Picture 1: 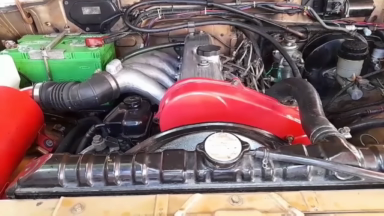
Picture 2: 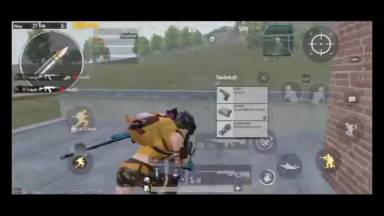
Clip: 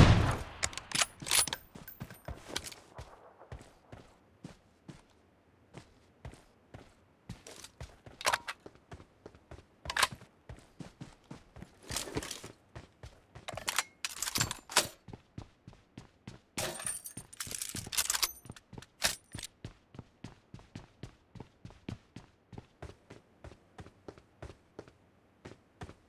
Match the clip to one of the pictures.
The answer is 2